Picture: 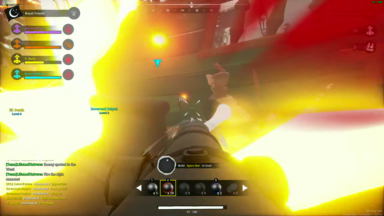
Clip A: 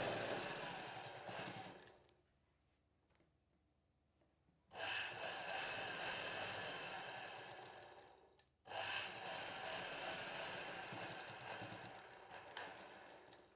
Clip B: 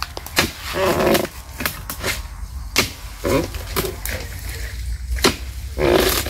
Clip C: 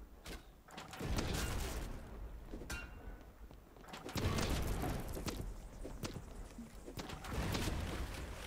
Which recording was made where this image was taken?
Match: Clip C